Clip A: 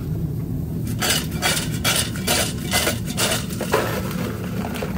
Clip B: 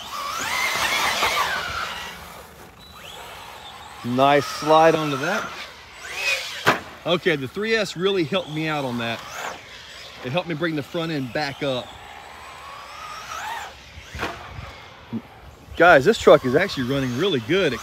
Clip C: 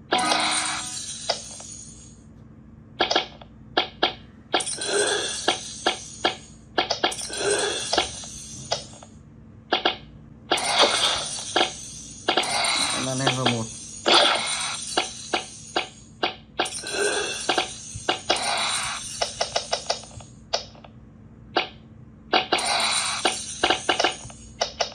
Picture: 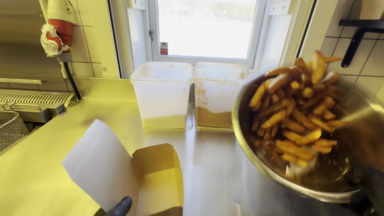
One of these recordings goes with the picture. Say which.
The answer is A